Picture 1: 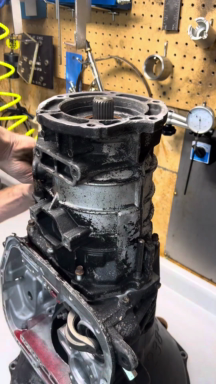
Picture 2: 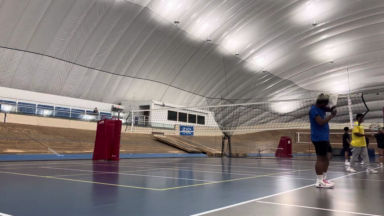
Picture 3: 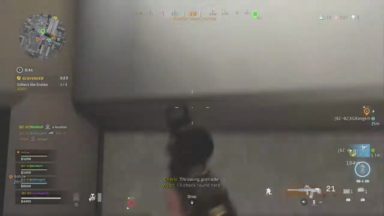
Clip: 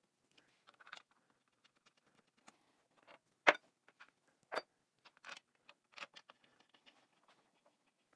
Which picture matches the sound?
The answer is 1